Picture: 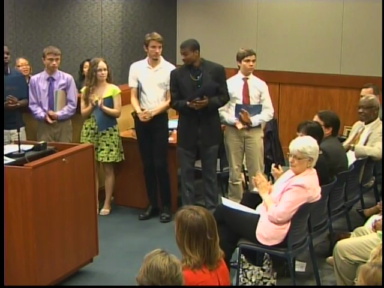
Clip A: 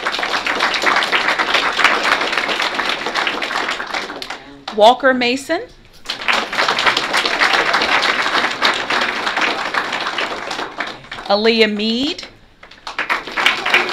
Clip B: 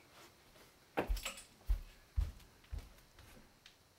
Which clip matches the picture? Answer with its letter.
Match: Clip A